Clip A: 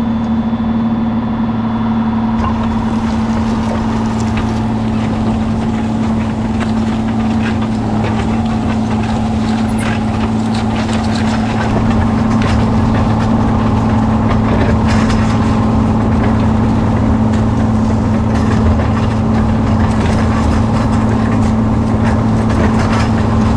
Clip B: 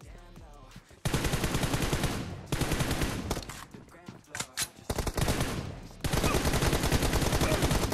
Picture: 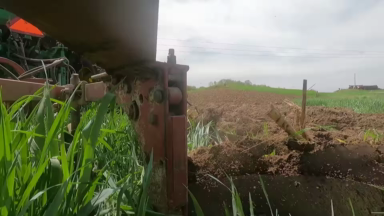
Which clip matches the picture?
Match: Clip A